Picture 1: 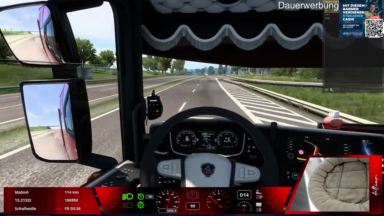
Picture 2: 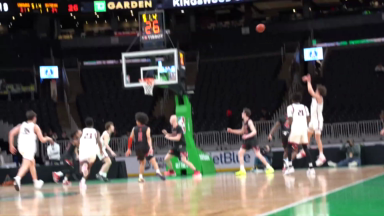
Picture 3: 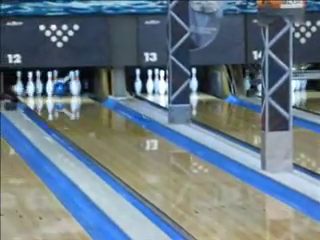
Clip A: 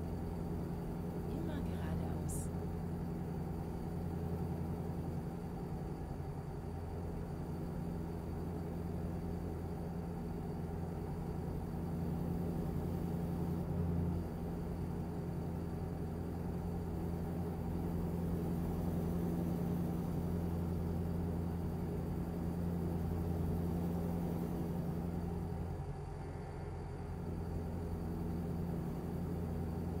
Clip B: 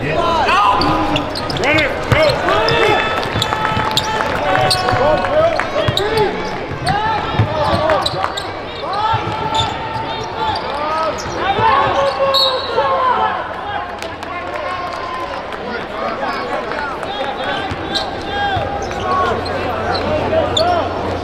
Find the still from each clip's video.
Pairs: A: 1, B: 2